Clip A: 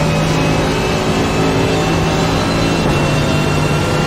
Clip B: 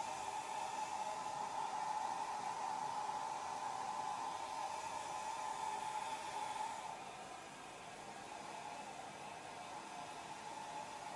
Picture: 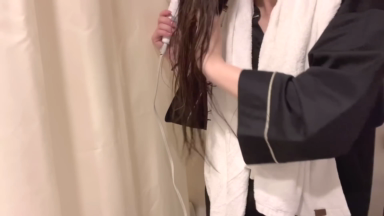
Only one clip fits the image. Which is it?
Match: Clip B